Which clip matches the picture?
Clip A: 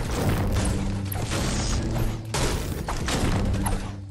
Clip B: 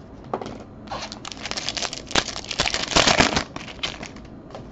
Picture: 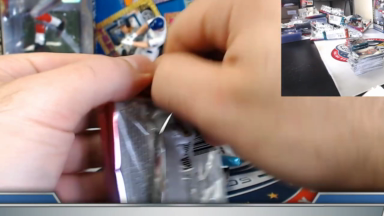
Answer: B